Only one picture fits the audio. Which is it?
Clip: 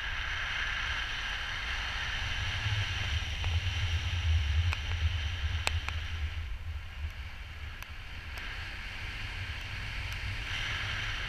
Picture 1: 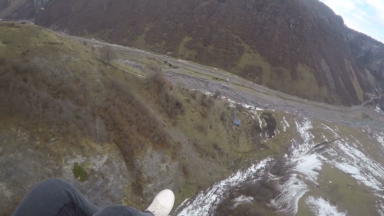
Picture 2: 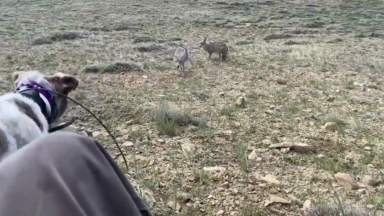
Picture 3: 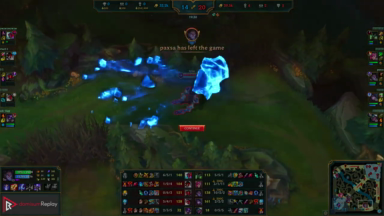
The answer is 1